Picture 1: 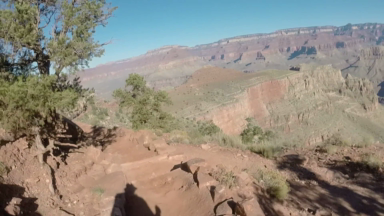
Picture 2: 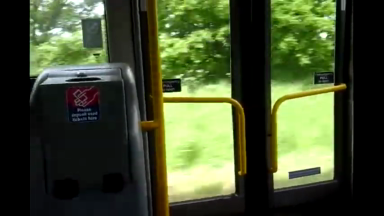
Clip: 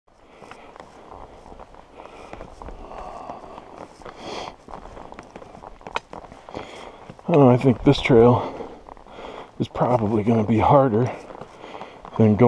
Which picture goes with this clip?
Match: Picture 1